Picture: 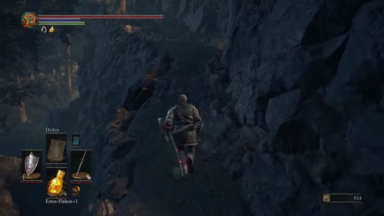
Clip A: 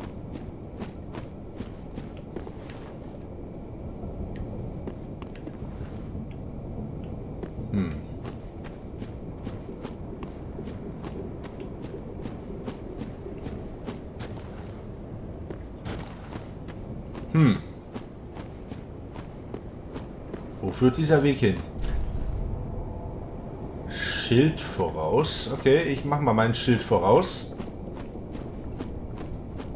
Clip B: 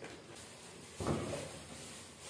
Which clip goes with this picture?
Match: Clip A